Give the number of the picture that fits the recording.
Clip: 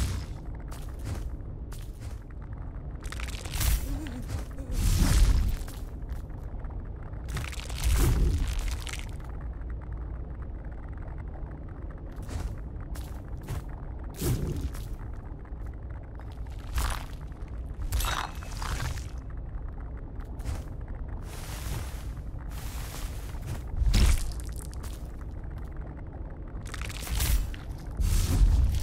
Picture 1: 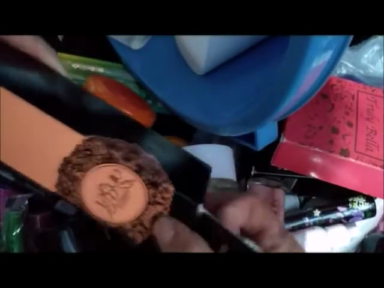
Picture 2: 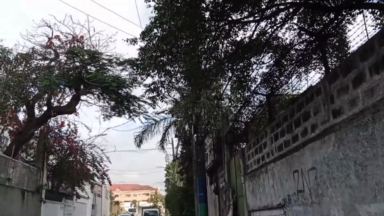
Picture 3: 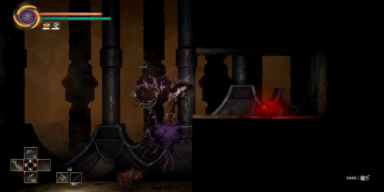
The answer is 3